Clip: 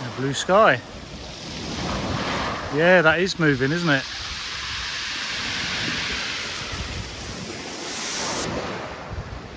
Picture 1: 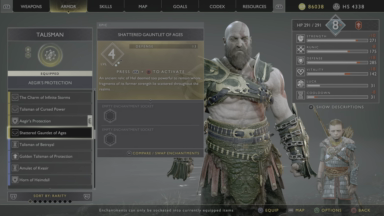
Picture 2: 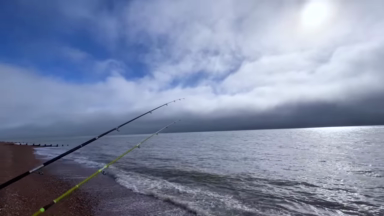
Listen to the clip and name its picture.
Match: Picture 2